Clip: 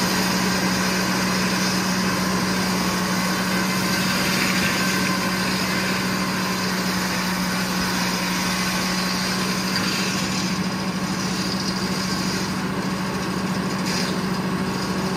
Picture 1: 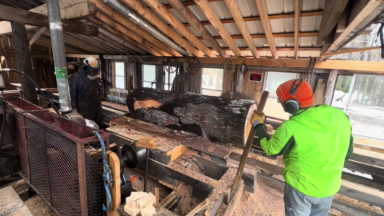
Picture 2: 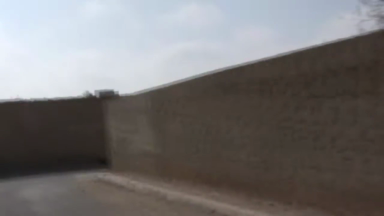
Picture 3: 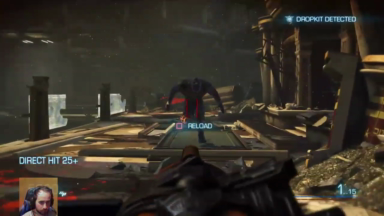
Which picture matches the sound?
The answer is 1